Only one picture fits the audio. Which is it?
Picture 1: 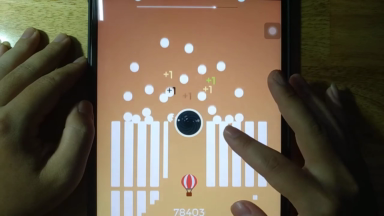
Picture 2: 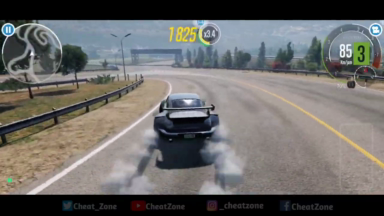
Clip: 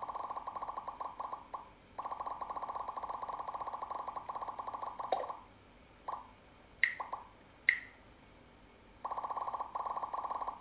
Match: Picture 1